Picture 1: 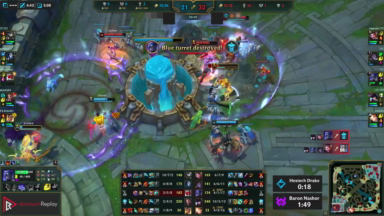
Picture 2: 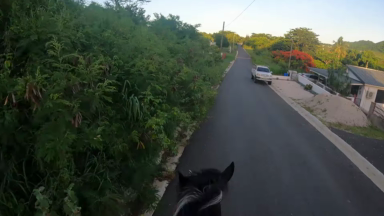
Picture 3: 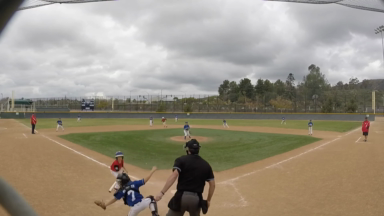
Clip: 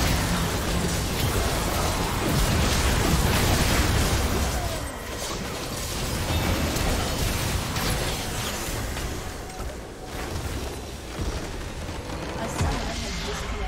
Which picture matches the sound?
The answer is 1